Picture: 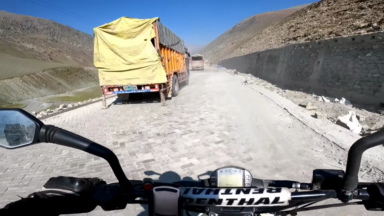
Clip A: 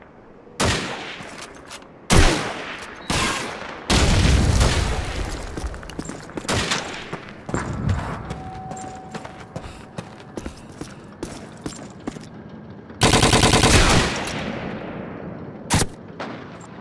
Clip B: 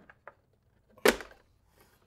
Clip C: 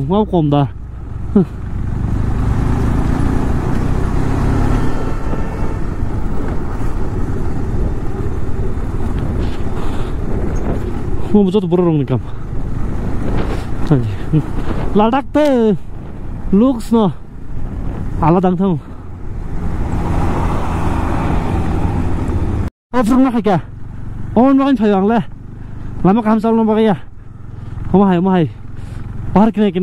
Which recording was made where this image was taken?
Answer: C